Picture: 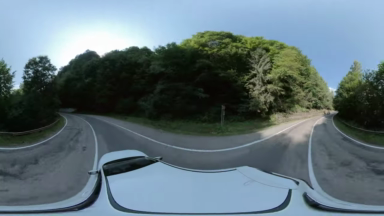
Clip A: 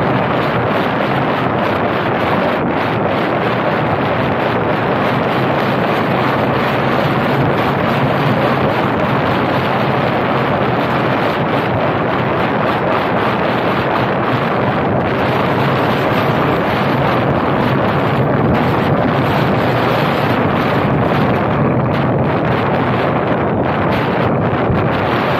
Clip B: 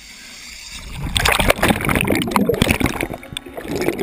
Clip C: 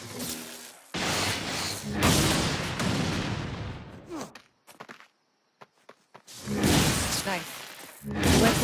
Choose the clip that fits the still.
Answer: A